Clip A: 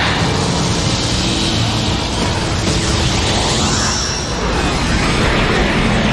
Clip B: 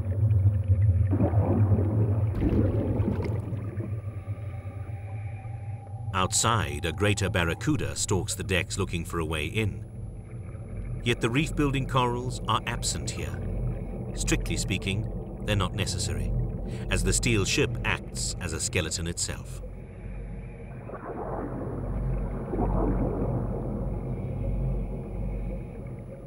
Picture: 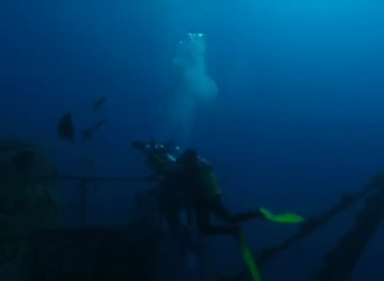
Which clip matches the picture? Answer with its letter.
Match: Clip B